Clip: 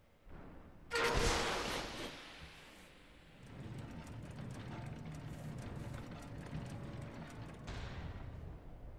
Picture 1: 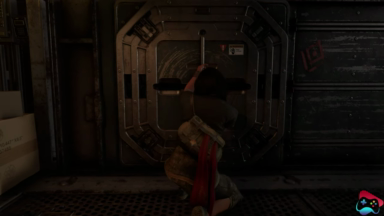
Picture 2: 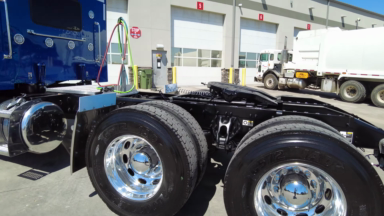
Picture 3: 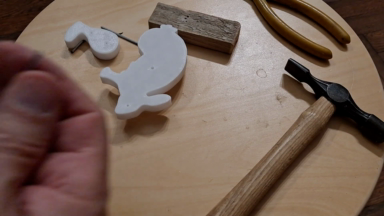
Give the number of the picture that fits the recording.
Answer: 1